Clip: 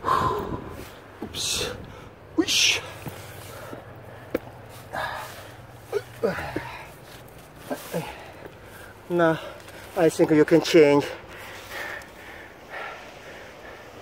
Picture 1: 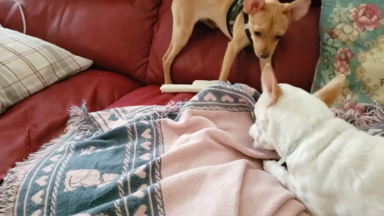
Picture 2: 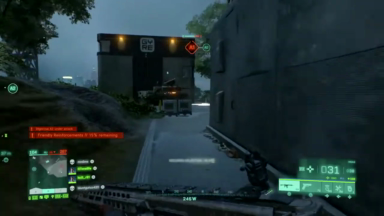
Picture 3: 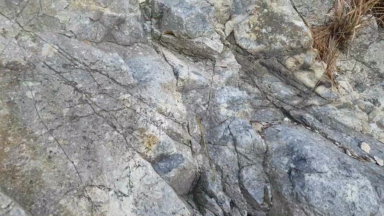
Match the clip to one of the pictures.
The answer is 3